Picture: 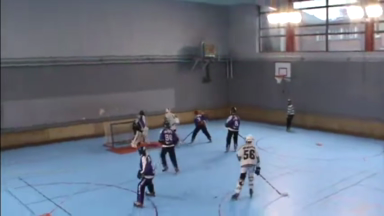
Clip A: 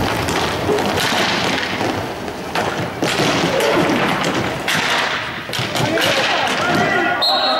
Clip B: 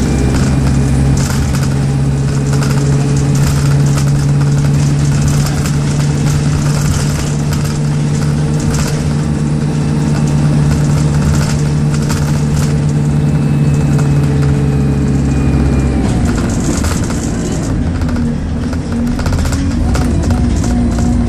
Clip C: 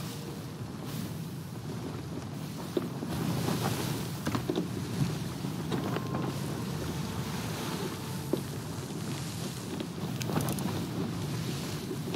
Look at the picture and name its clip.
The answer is A